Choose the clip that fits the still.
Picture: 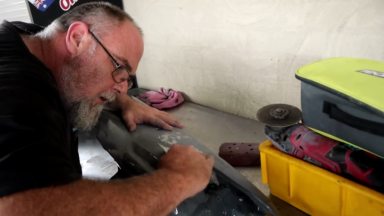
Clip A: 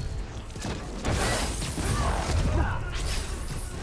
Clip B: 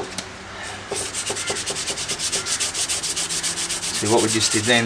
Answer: B